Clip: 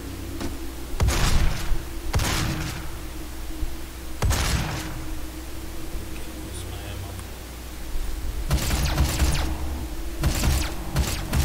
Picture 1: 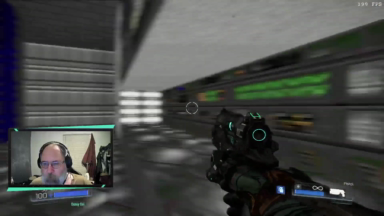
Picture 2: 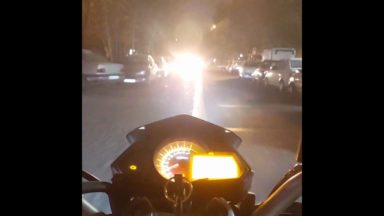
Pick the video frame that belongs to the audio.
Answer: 1